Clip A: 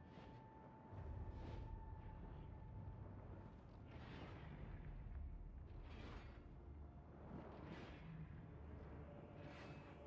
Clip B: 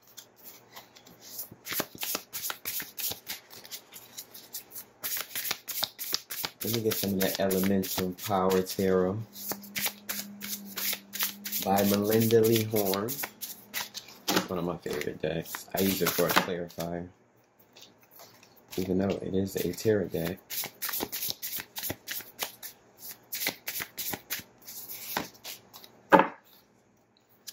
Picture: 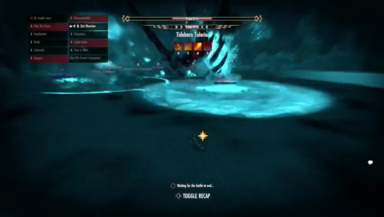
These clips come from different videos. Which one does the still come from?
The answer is A